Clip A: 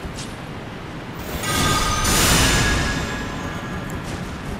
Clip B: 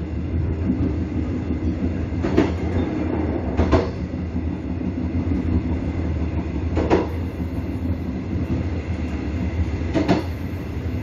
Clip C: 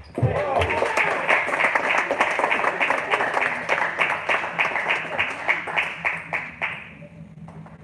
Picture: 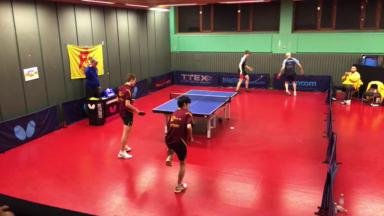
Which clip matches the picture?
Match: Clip C